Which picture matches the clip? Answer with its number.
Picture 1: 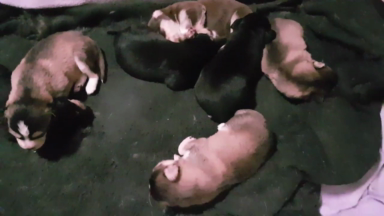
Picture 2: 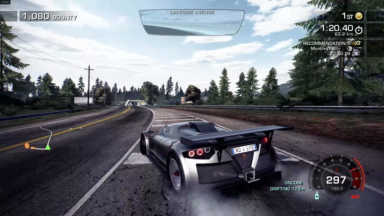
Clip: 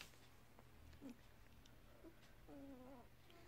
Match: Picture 1